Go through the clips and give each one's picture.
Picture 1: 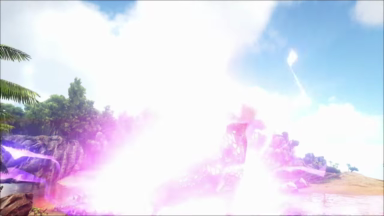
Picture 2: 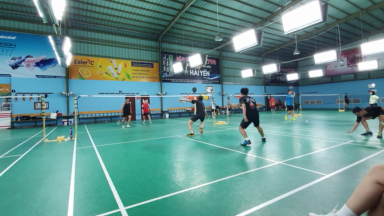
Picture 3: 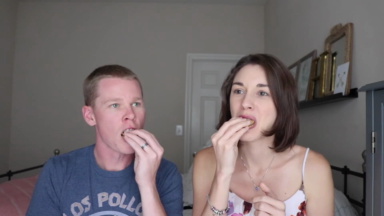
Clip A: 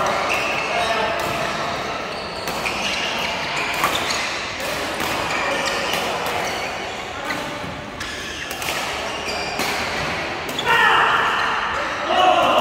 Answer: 2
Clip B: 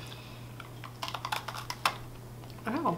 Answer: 3